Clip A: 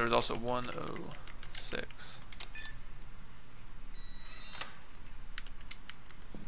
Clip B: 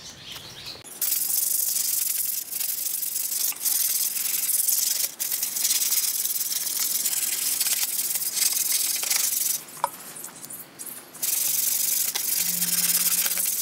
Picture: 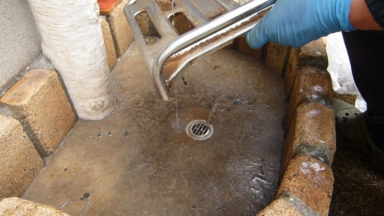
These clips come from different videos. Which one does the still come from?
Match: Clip B